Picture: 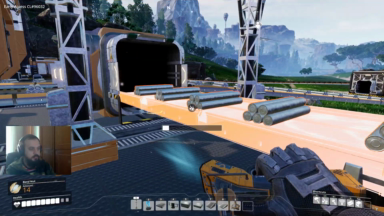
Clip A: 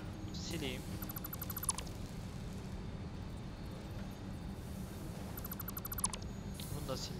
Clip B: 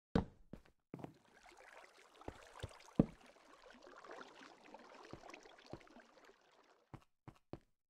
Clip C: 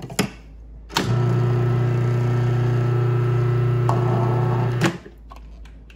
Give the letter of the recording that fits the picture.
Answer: A